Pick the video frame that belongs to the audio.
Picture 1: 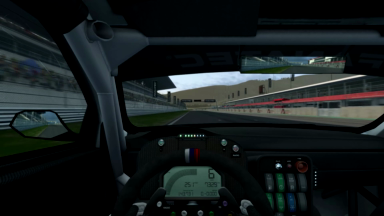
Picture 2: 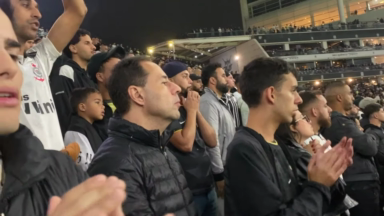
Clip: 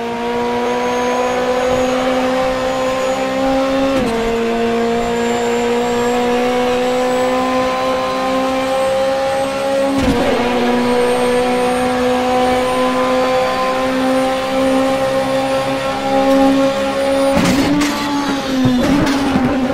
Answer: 1